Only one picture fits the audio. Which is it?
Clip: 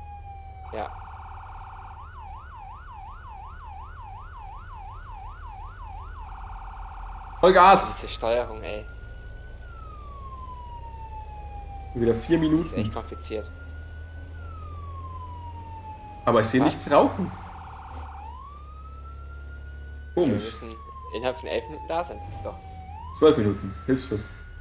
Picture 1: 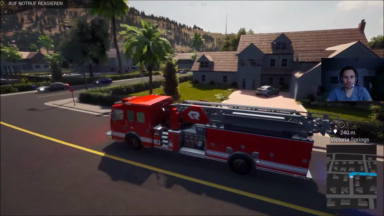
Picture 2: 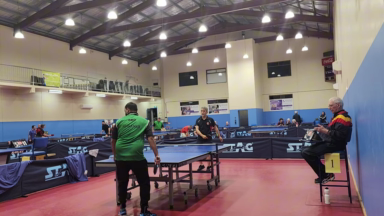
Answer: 1